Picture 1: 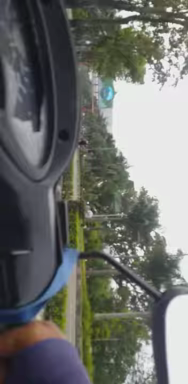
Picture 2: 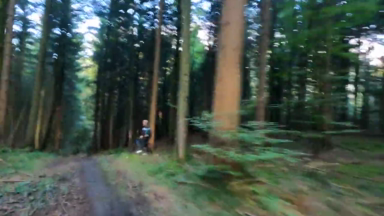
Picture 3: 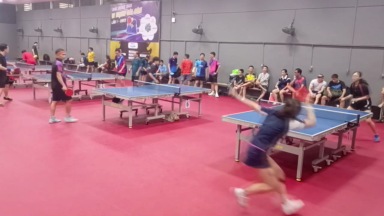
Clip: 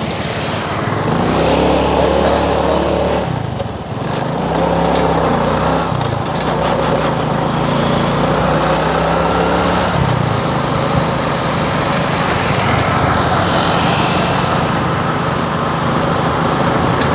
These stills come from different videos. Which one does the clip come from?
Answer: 1